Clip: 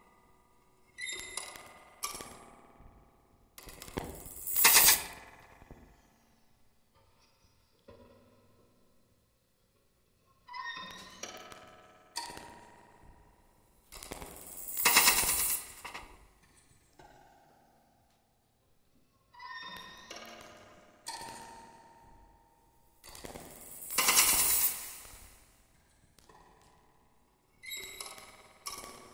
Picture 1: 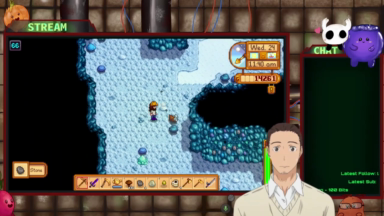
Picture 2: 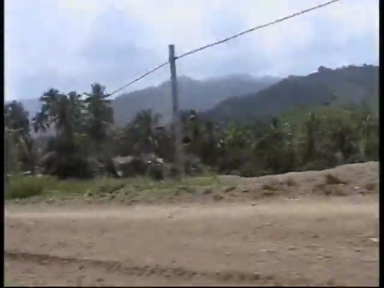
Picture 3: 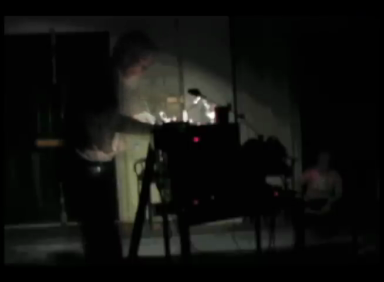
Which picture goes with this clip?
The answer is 3